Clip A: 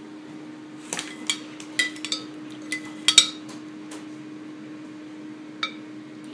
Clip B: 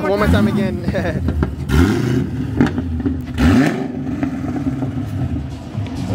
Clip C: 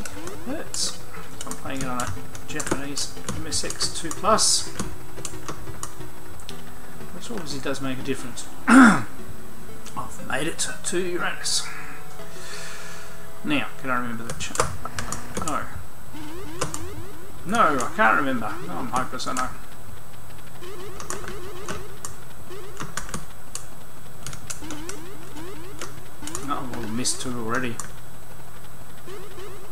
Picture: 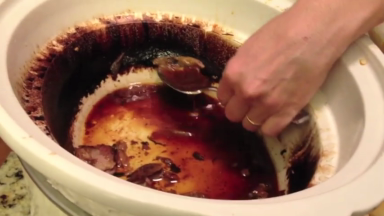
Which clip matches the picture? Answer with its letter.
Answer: A